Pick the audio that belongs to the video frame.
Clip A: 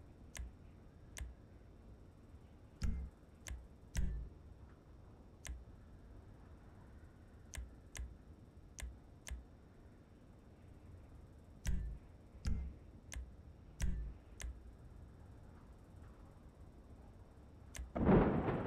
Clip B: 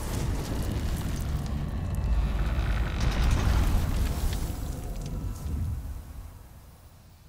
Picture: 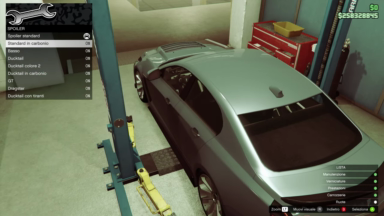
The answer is A